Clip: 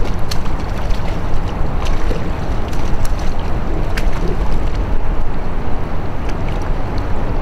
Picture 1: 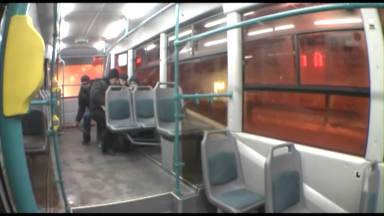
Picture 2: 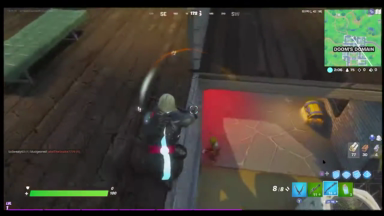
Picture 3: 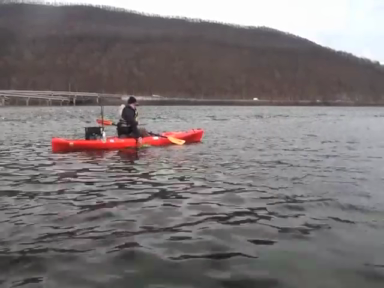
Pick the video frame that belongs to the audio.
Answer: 3